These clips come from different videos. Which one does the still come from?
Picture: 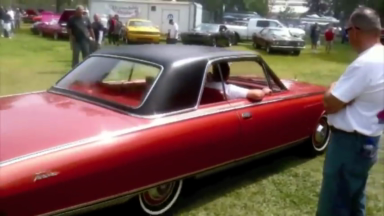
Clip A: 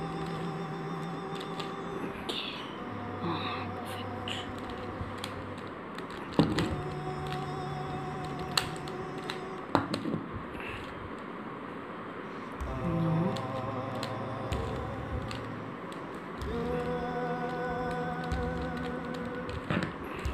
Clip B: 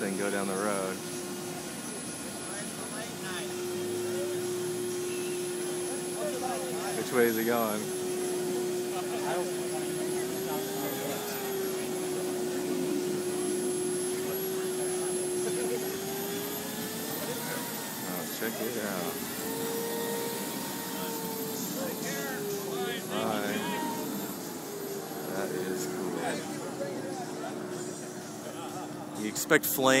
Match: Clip B